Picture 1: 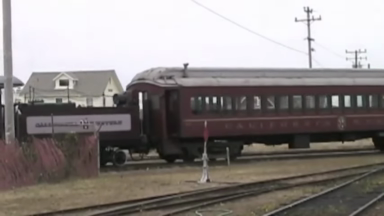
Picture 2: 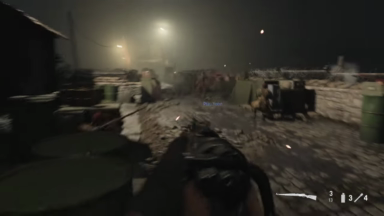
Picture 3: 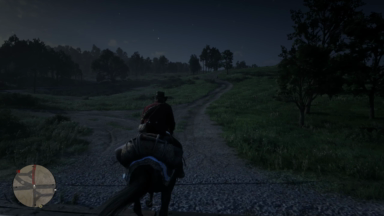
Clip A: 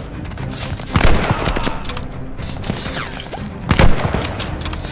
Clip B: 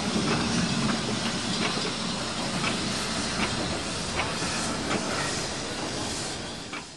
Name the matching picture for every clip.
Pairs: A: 2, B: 1